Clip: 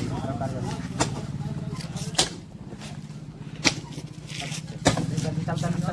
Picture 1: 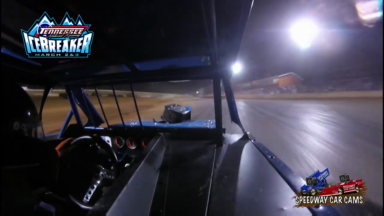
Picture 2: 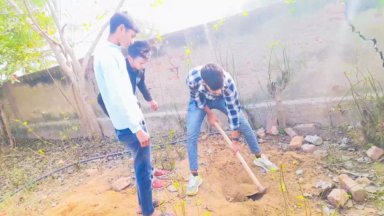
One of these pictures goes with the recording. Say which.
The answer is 2